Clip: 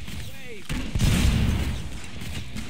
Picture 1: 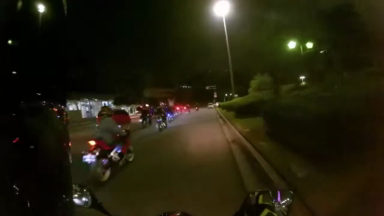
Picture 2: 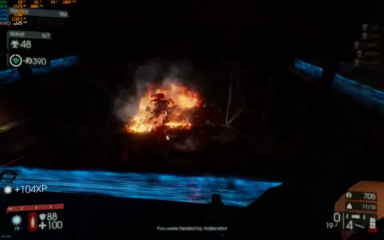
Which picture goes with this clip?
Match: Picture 2